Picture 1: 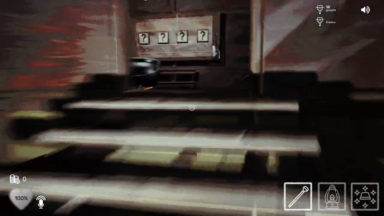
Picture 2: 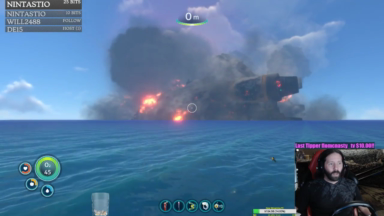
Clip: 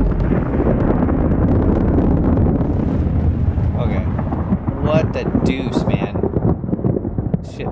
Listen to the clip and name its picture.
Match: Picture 2